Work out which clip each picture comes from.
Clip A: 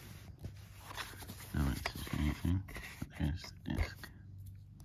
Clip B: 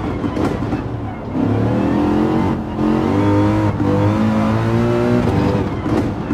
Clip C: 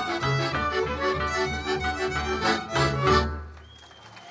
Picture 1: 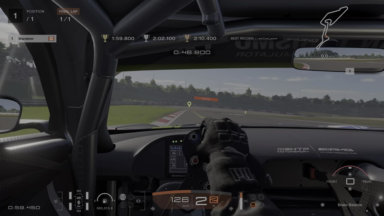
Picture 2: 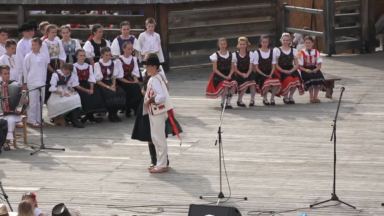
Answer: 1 B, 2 C